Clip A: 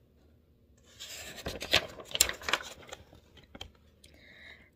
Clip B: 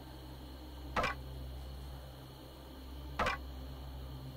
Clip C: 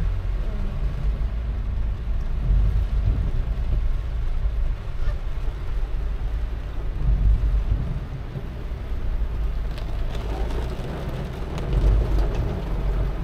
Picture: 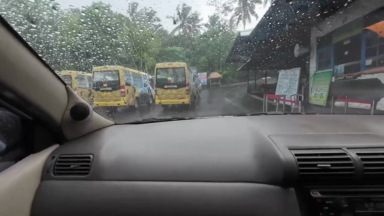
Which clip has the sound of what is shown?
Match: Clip C